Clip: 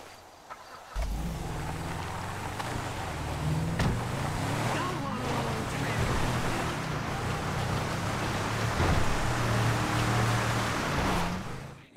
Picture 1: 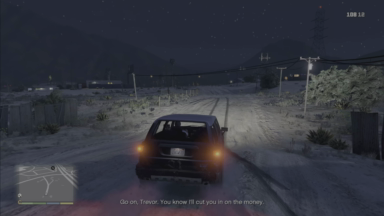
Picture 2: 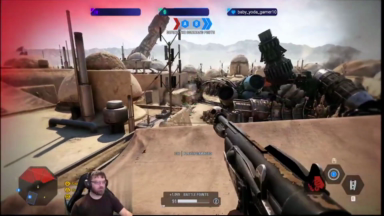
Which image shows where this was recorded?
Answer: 1